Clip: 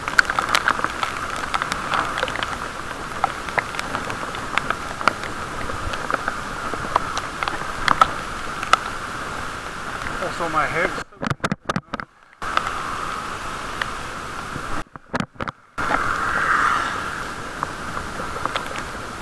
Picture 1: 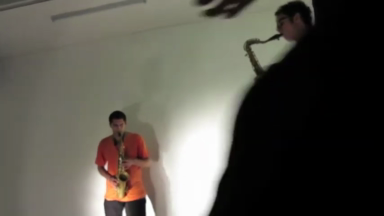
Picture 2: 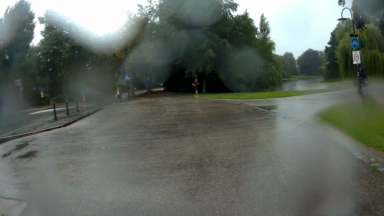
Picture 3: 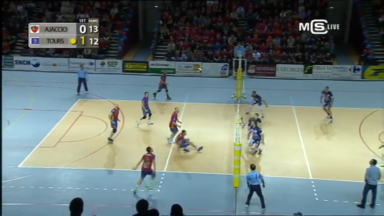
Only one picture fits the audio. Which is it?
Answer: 2